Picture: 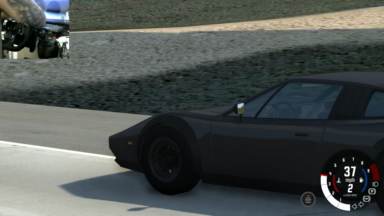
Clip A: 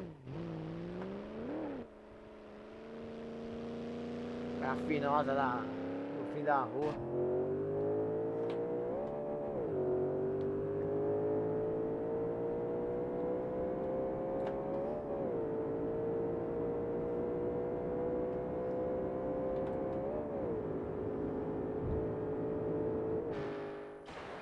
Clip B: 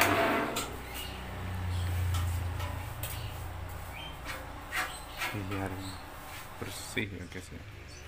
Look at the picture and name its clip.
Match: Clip A